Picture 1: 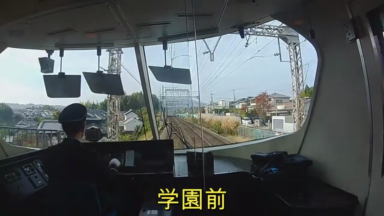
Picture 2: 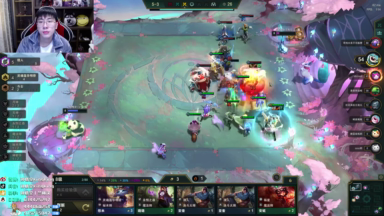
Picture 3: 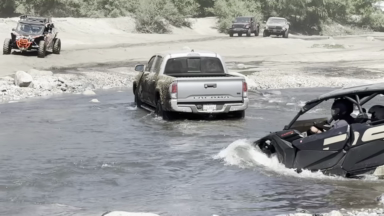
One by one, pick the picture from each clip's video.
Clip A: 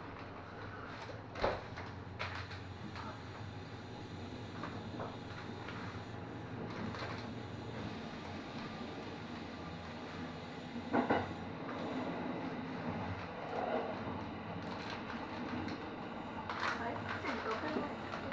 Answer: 1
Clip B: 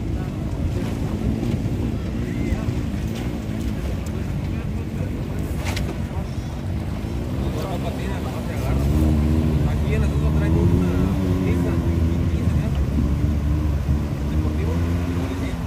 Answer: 3